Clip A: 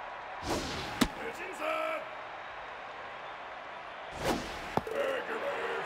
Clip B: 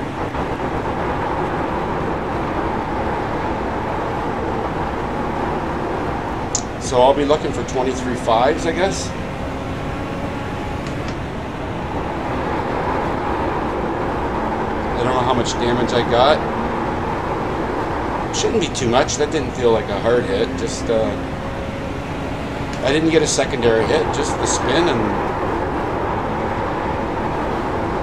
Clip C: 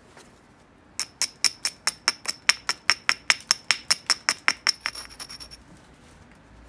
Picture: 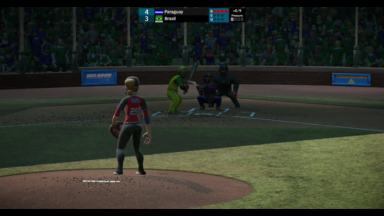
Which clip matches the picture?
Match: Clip A